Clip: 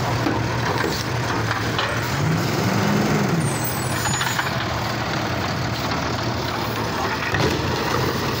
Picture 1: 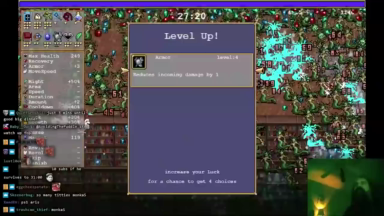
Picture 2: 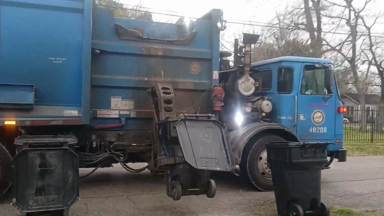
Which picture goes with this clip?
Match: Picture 2